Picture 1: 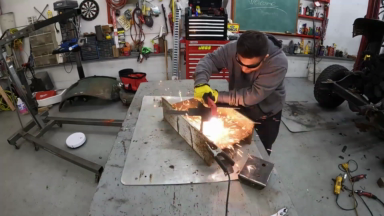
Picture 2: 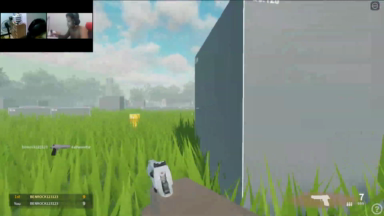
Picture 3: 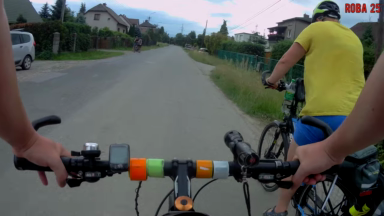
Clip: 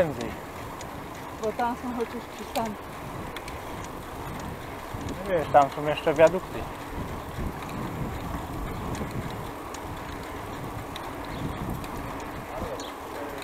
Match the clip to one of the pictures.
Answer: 3